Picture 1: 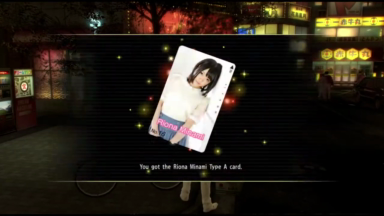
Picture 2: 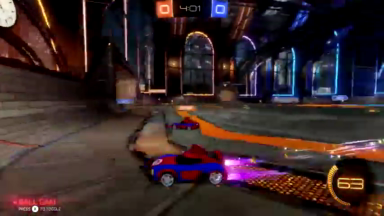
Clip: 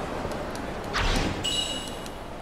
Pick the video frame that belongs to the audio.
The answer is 1